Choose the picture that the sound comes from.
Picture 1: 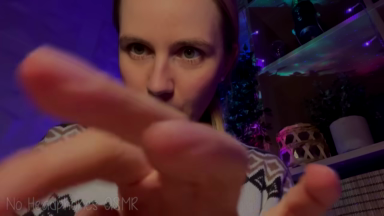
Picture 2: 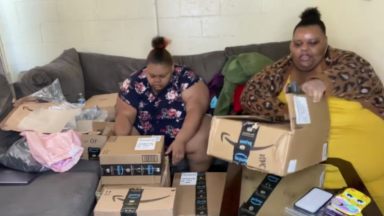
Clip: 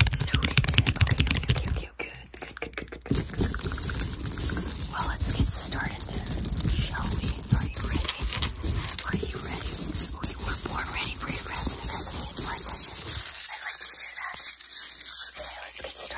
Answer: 1